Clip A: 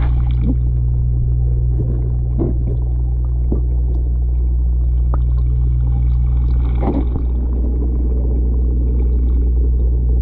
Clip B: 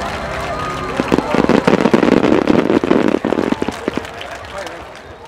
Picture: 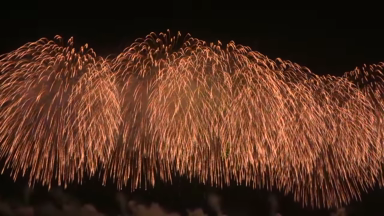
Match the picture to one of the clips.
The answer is B